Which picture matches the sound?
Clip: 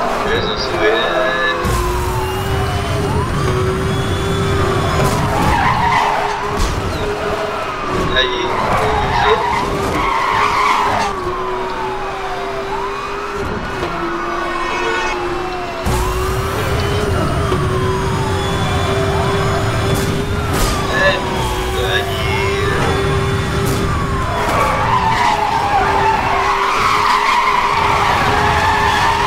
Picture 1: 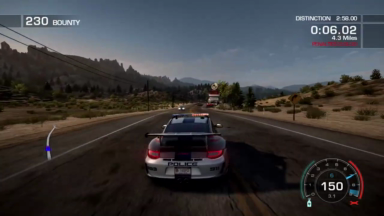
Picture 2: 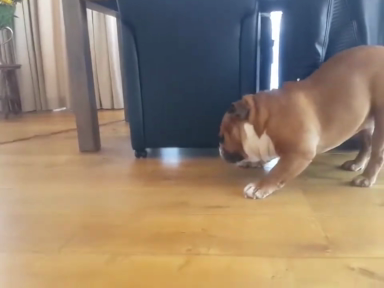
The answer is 1